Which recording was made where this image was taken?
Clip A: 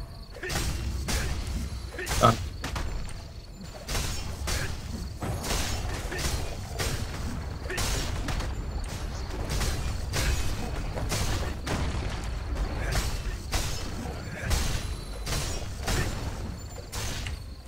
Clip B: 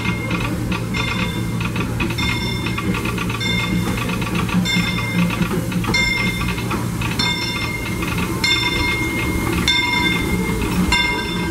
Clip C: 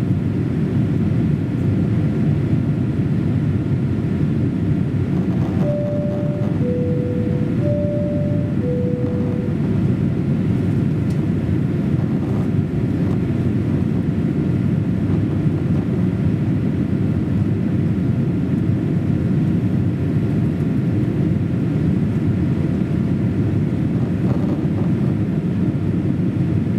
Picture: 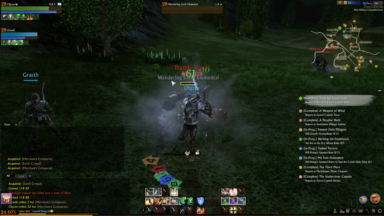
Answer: A